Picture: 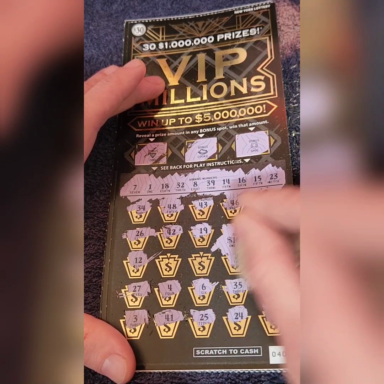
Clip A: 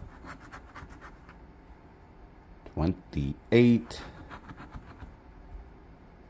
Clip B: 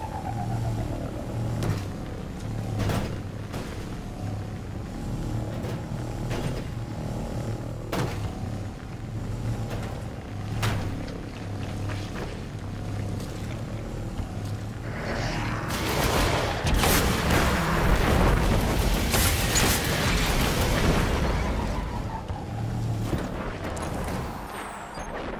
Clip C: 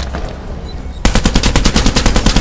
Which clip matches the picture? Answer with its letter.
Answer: A